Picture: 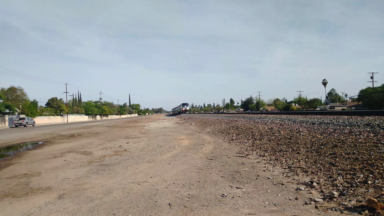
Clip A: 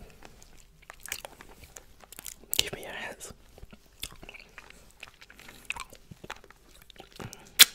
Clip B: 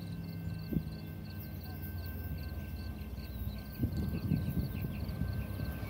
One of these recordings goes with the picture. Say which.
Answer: B